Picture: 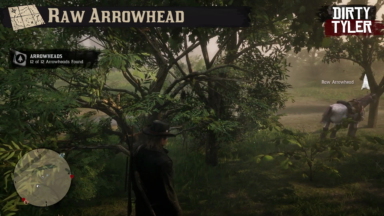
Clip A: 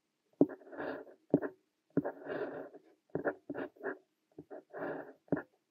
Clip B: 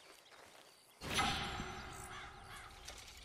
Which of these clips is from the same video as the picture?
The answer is B